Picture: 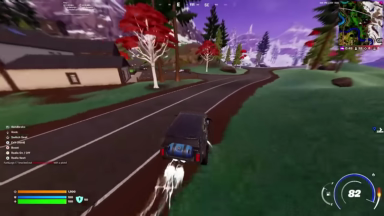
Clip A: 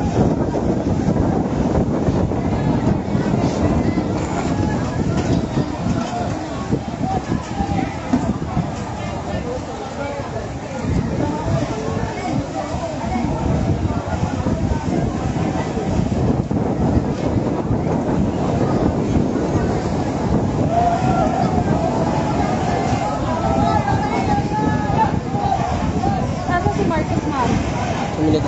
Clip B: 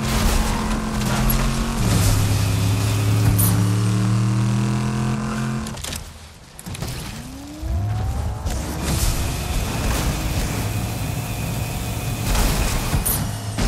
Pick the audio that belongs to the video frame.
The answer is B